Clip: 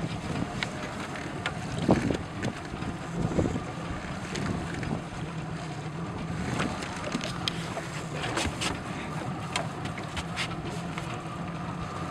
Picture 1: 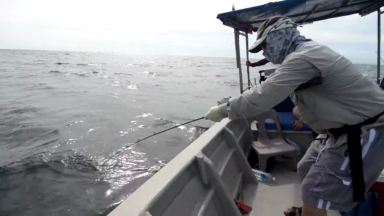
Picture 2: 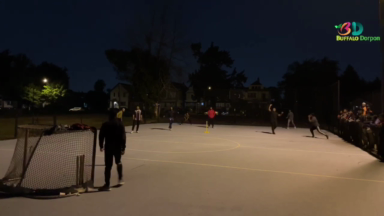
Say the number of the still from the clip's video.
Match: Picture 1